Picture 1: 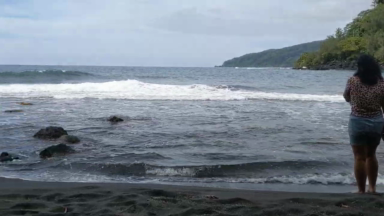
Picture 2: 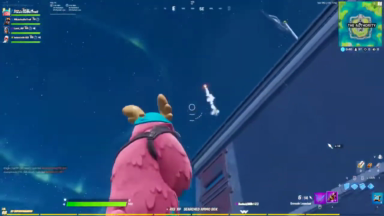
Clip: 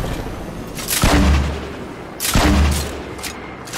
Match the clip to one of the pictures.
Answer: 2